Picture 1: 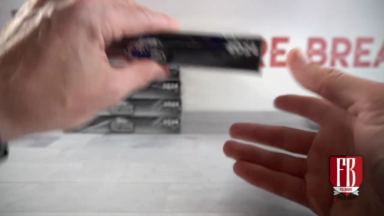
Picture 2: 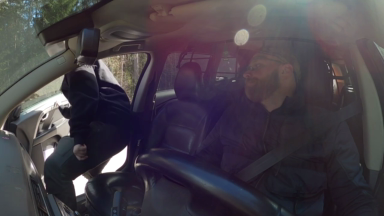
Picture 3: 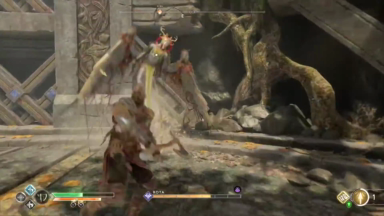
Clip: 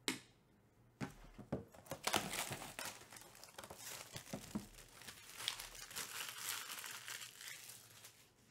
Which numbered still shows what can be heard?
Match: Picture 1